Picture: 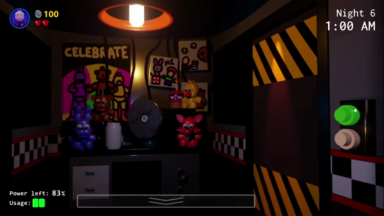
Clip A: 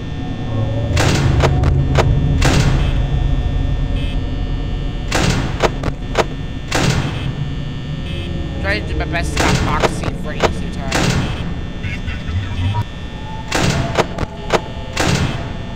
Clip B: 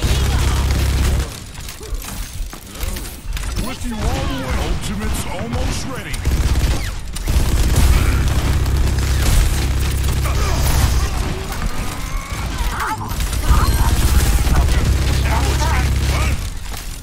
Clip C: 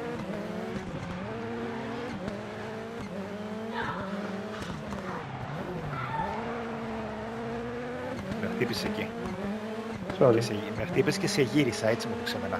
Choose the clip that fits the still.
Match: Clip A